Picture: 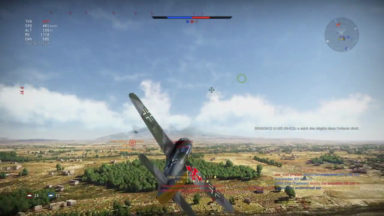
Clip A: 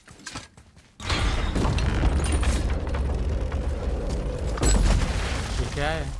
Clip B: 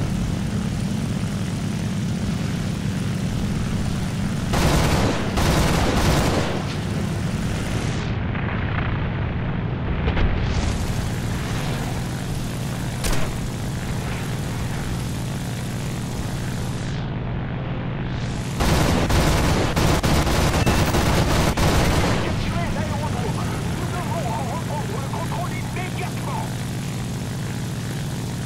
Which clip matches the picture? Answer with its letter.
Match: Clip B